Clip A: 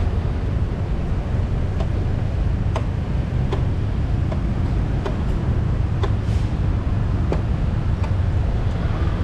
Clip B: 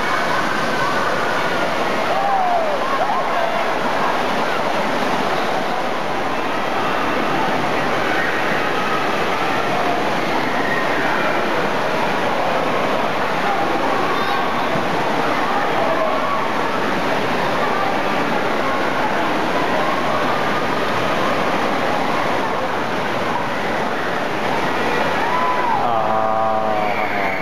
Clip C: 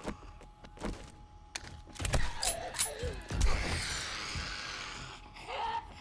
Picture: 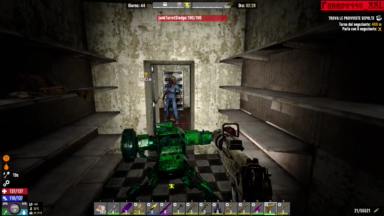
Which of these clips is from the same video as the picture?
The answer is C